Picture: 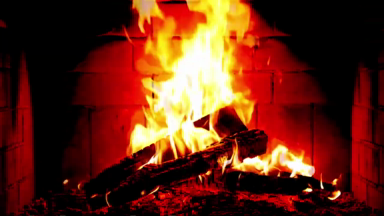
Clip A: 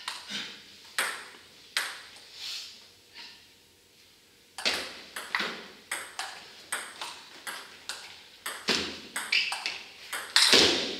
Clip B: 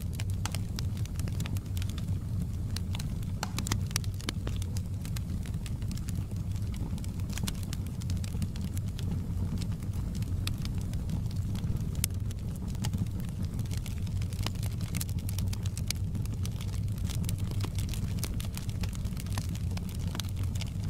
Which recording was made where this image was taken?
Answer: B